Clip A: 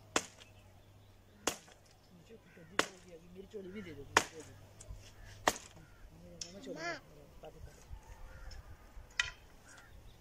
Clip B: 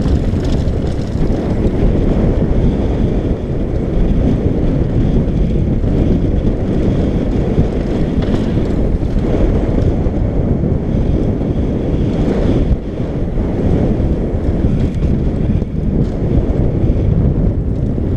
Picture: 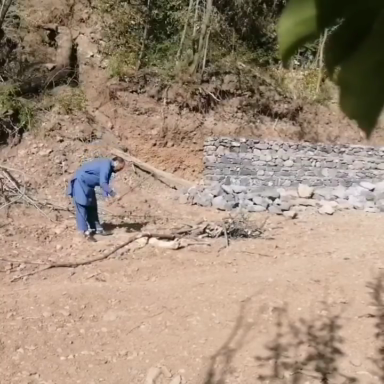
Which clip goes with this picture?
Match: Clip A